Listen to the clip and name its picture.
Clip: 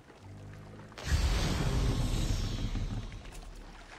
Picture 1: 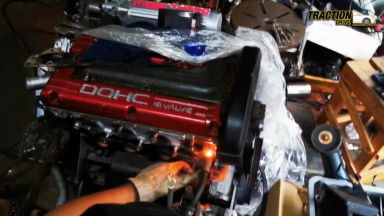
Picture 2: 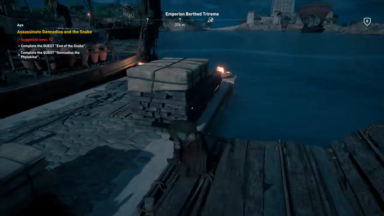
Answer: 2